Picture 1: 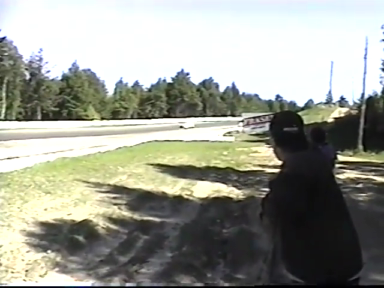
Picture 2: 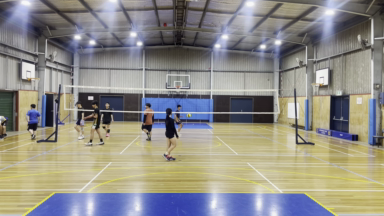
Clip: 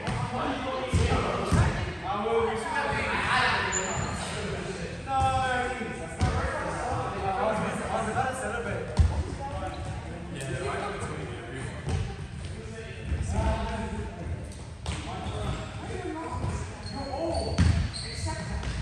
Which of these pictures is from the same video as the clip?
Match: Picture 2